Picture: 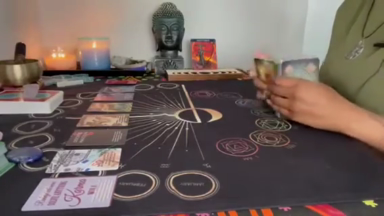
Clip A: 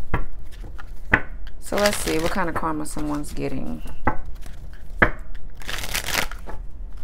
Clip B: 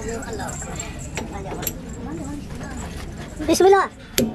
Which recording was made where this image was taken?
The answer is A